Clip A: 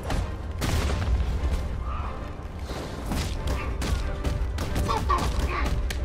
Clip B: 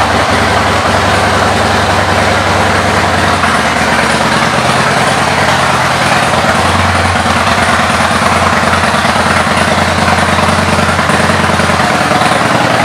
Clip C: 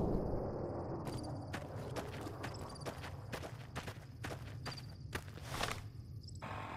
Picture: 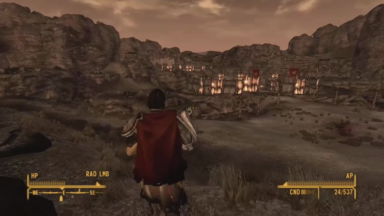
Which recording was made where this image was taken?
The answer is C